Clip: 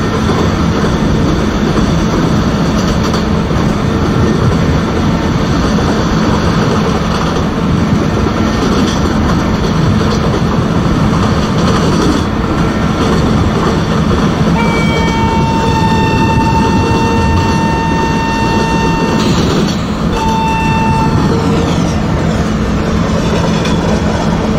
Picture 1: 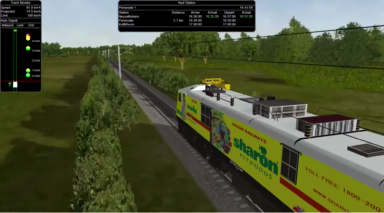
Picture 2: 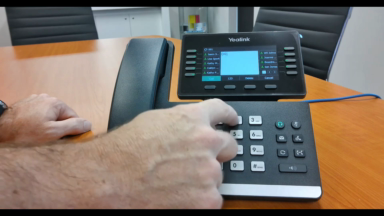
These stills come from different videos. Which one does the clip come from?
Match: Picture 1